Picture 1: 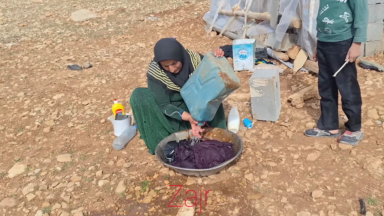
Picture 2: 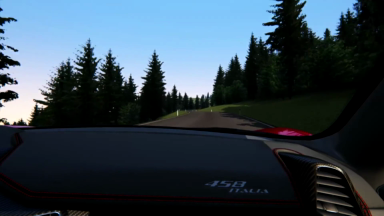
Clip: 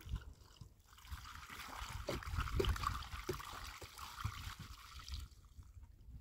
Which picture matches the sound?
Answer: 1